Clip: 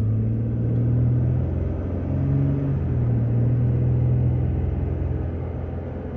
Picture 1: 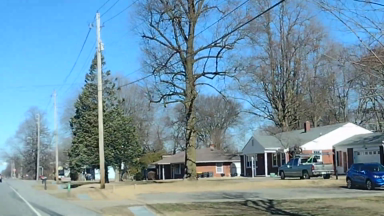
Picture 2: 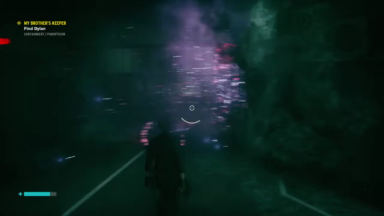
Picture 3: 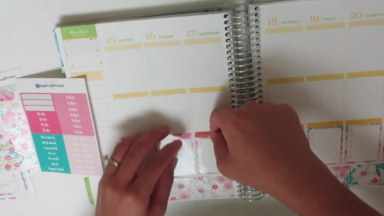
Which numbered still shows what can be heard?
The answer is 1